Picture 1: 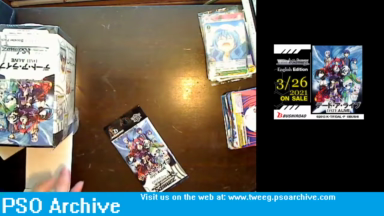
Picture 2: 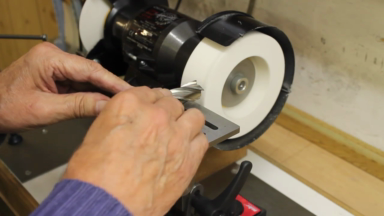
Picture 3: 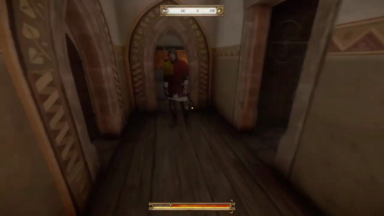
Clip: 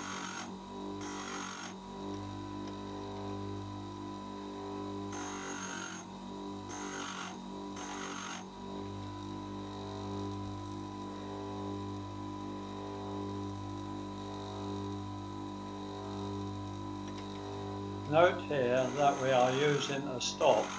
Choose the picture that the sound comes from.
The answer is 2